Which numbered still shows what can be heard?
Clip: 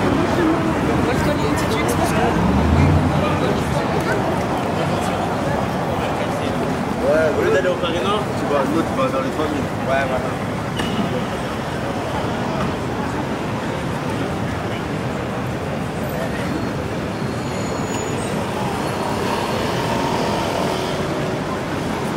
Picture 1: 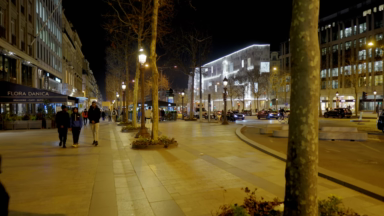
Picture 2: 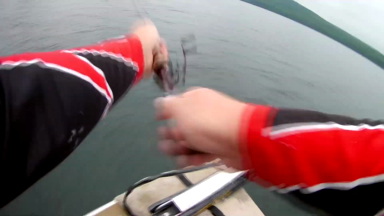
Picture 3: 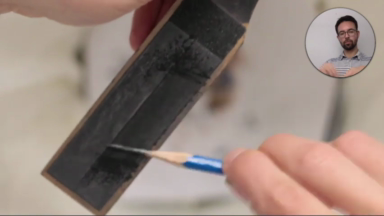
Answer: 1